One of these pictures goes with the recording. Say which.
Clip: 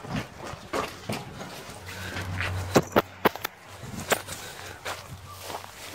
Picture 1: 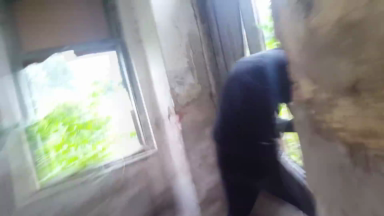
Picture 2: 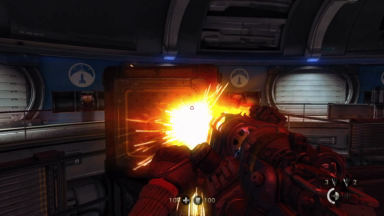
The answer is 1